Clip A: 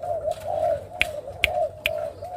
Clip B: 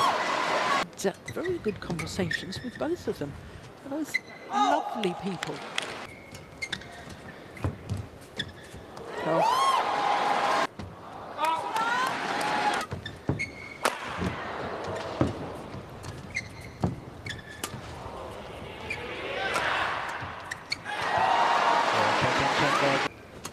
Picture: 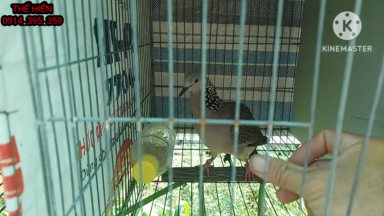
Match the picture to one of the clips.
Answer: A